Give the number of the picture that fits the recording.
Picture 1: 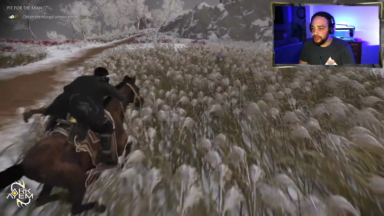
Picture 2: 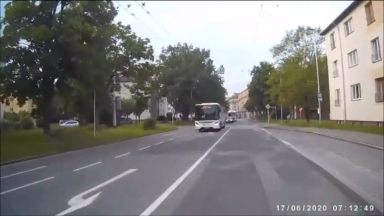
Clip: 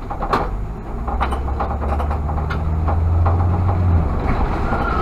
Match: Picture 2